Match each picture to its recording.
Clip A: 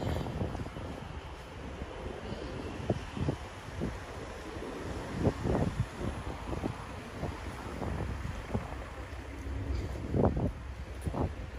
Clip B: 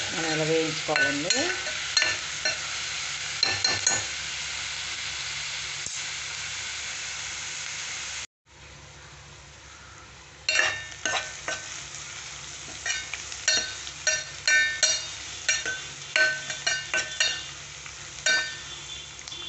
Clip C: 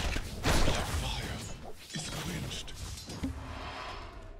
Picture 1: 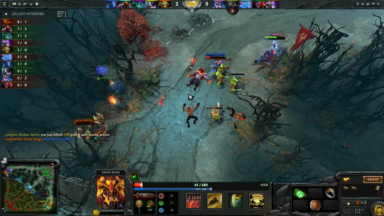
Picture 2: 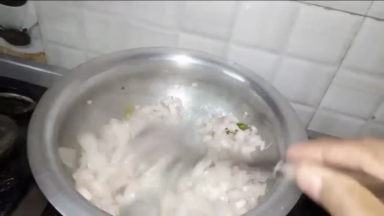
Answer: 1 C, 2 B